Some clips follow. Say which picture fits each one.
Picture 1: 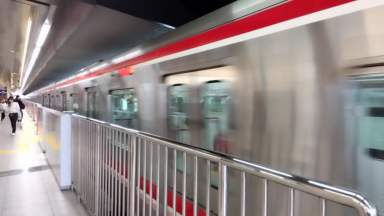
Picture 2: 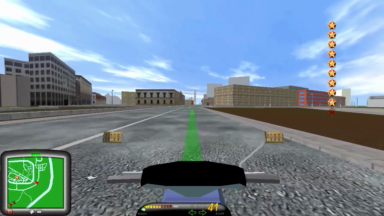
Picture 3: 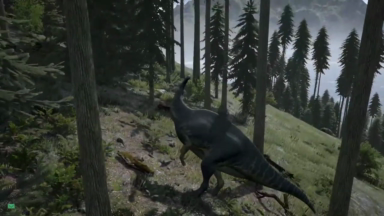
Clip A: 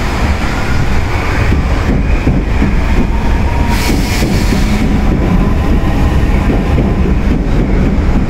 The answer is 1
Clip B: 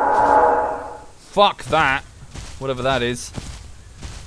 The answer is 3